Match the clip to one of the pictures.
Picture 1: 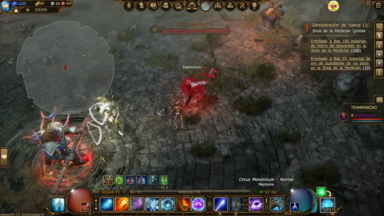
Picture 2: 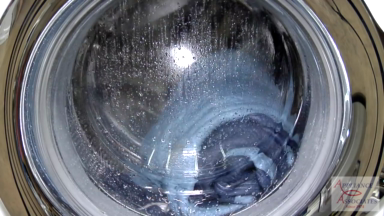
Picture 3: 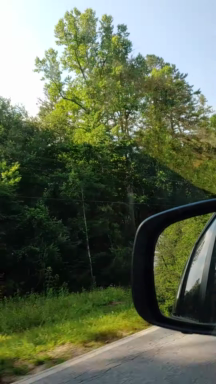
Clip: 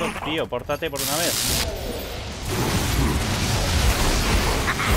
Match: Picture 1